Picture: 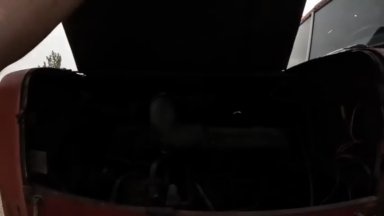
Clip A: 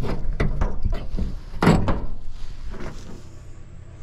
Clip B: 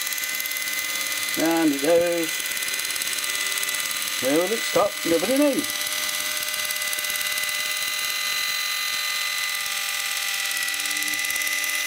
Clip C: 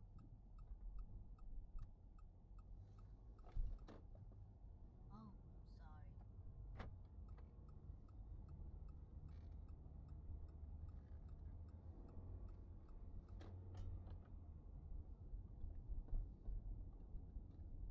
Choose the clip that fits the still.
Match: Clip A